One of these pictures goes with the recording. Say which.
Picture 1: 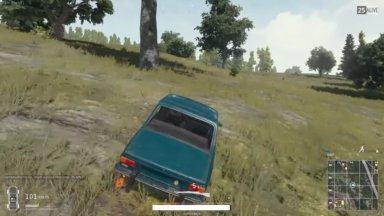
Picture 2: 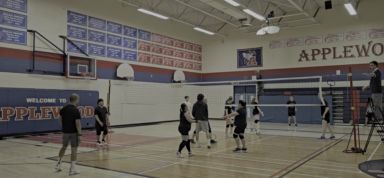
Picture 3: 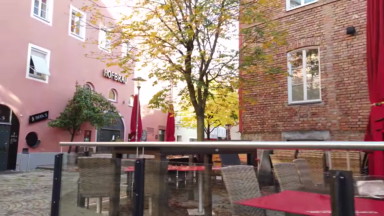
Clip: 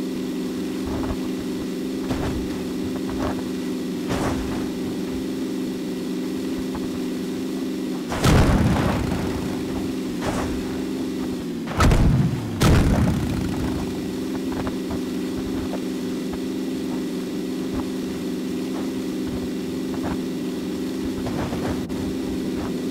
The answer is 1